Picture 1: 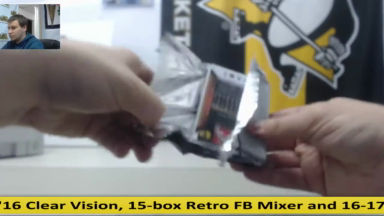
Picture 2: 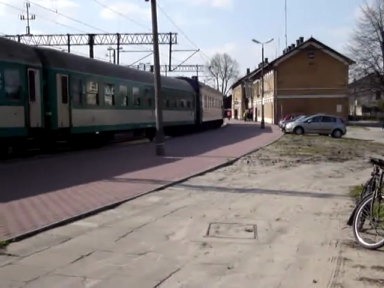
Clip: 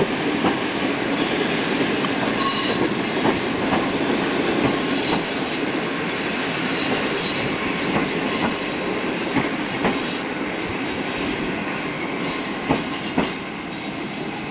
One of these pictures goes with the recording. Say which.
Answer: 2